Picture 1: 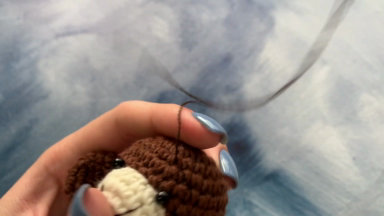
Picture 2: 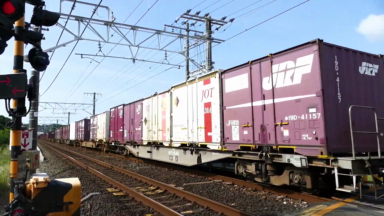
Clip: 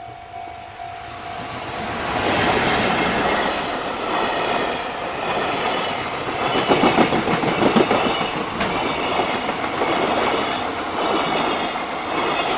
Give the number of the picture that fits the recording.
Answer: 2